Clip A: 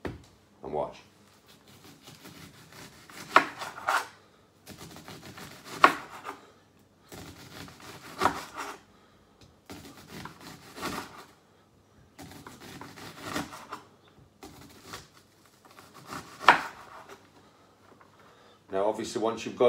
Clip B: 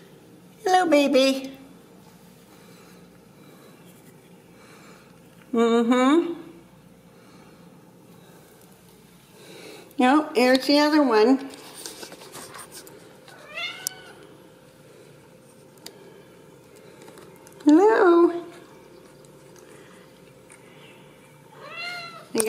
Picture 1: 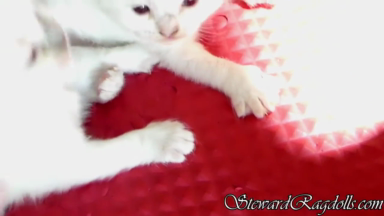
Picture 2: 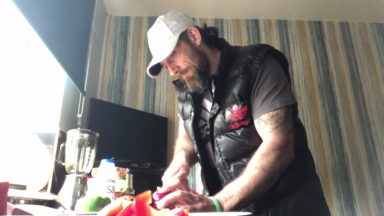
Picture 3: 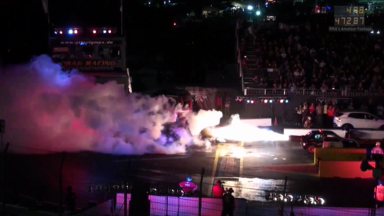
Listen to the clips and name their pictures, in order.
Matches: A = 2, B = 1